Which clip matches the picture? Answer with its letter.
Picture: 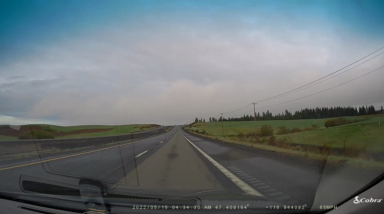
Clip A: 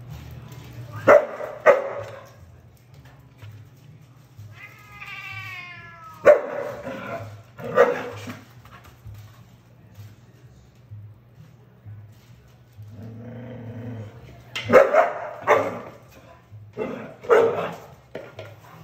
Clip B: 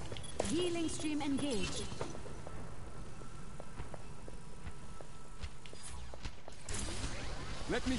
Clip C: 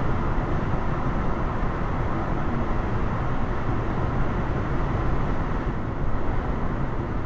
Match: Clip C